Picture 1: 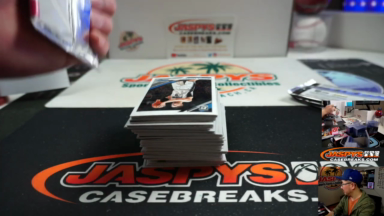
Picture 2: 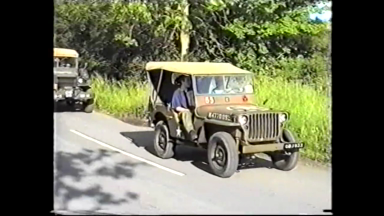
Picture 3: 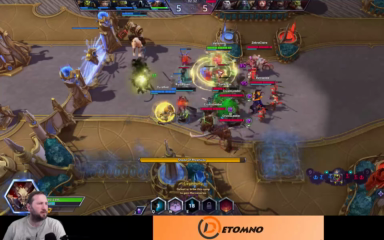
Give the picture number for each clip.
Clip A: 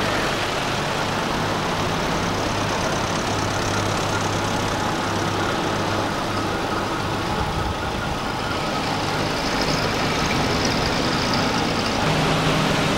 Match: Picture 2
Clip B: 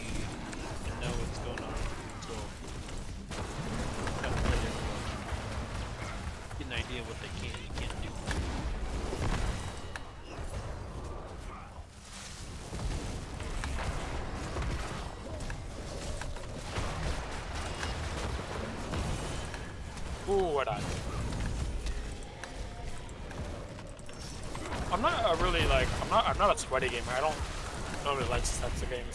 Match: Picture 3